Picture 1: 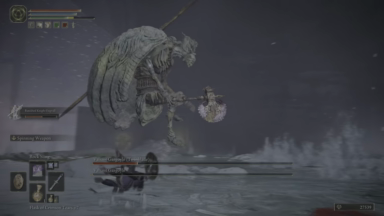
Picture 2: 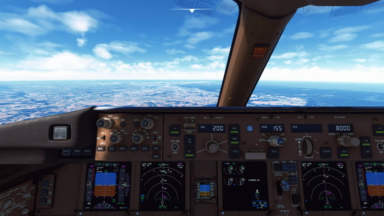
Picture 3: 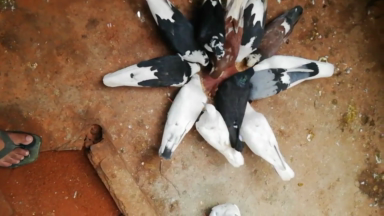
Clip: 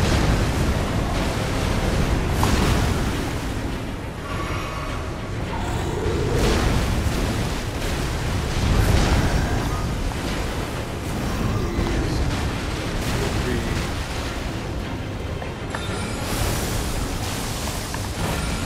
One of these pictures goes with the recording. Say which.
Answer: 1